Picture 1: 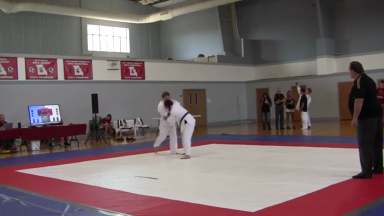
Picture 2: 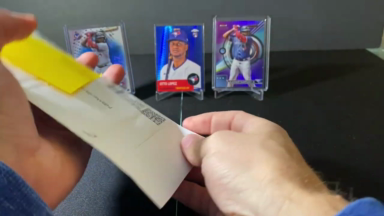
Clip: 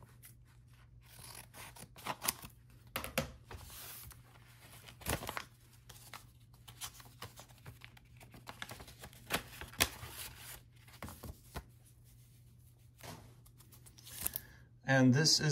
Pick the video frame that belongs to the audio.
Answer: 2